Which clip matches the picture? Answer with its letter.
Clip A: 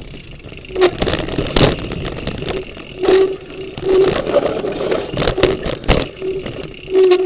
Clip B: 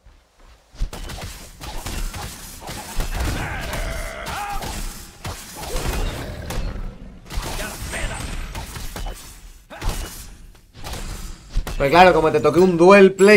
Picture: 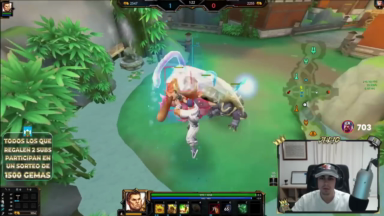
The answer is B